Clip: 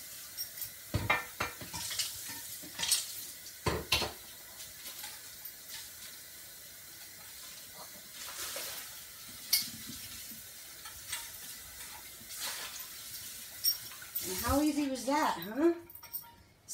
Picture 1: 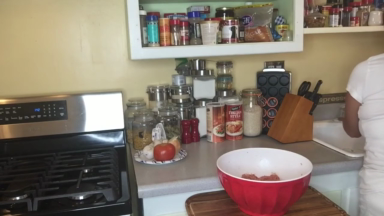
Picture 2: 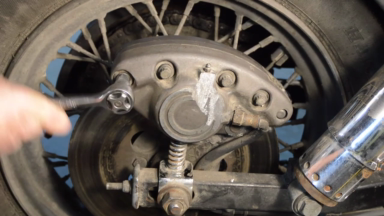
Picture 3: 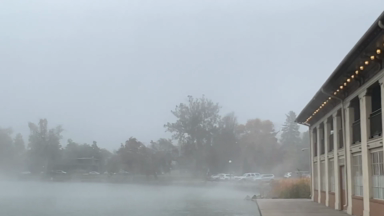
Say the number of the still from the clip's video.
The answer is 1